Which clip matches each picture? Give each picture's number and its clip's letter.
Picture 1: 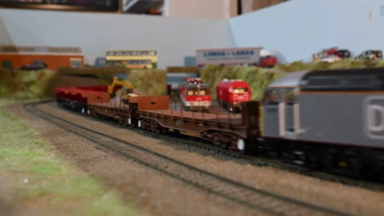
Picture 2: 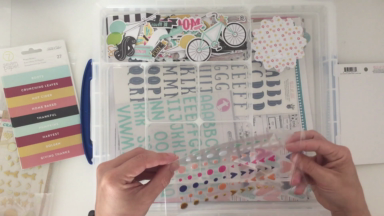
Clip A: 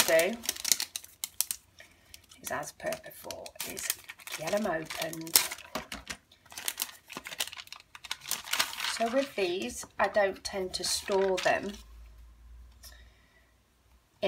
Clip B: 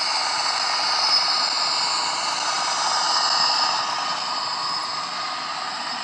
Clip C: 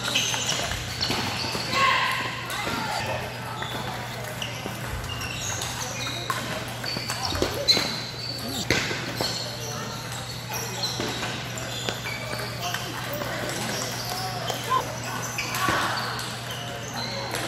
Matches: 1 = B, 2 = A